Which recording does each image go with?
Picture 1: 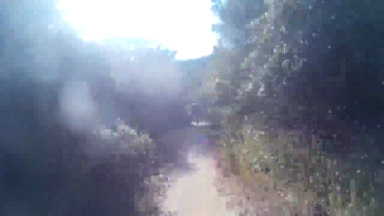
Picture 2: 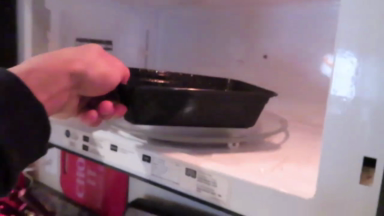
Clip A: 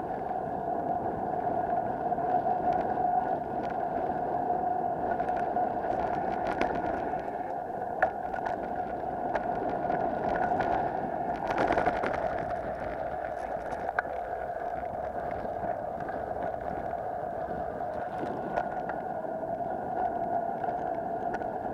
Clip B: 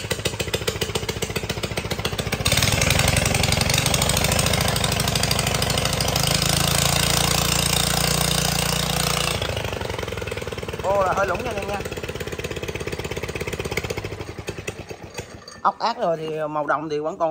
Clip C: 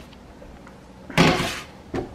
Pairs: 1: A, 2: C